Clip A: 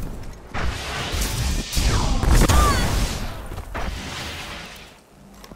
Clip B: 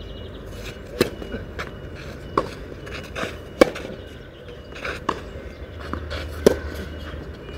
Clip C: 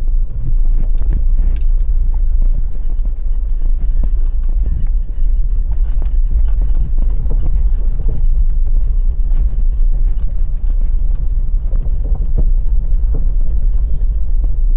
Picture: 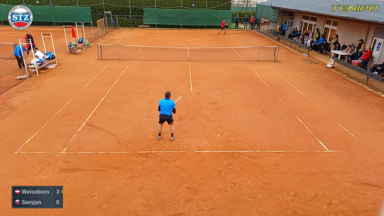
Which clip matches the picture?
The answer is B